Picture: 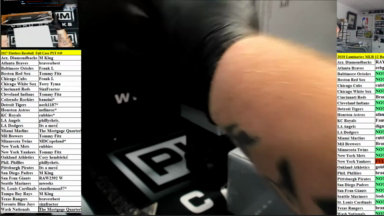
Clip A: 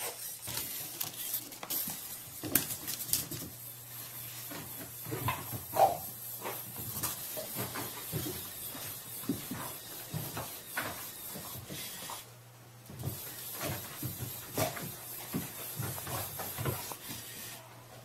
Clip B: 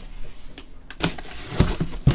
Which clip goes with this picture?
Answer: B